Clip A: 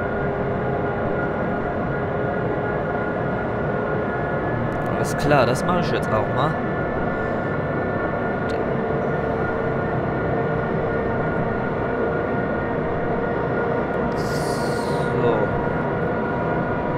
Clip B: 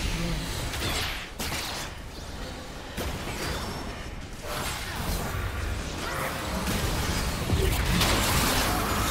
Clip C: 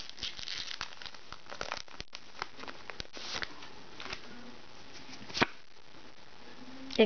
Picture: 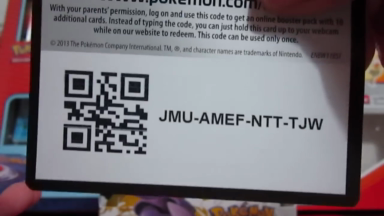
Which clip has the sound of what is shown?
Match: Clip C